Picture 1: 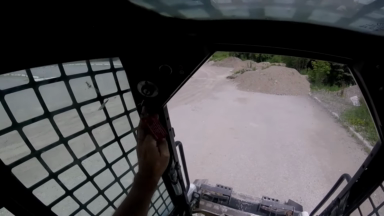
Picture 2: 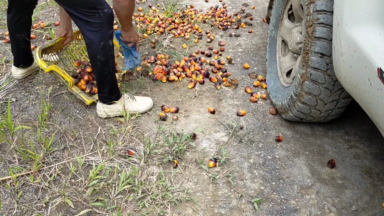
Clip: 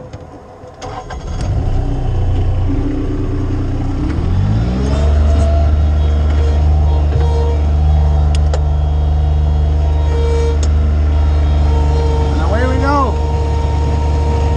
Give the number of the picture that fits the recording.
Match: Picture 1